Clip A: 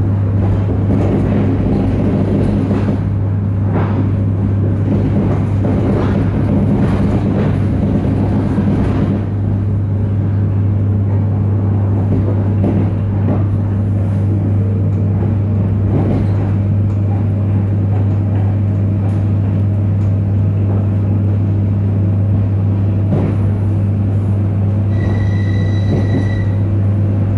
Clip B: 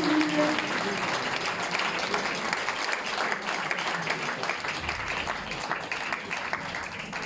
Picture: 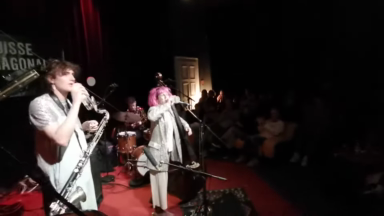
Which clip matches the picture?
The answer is B